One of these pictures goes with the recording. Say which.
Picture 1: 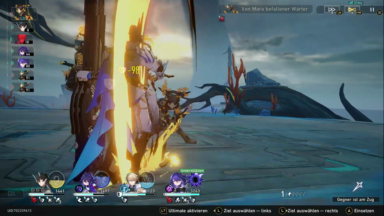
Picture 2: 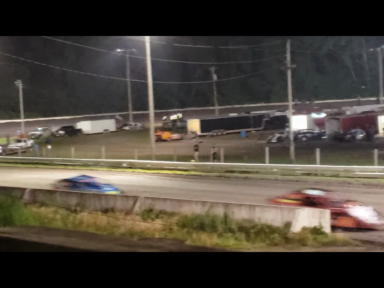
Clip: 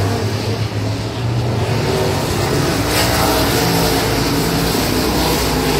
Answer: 2